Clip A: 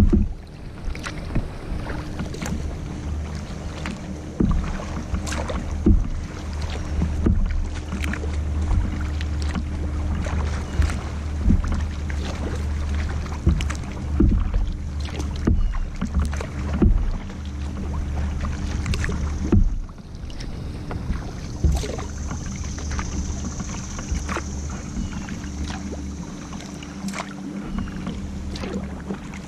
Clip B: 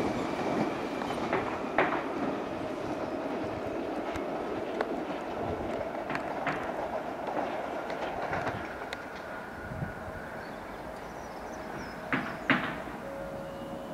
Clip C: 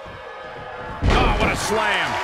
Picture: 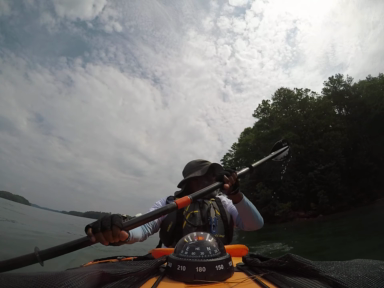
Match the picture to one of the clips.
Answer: A